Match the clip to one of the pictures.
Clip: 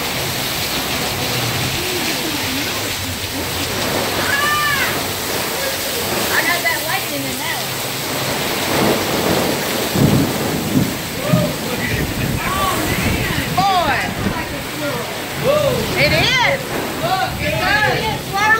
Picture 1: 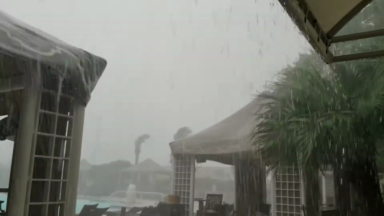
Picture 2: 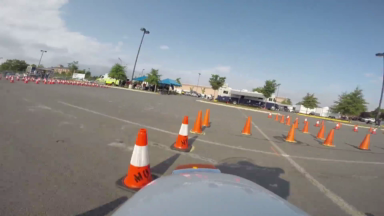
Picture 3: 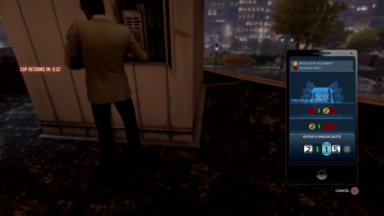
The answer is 1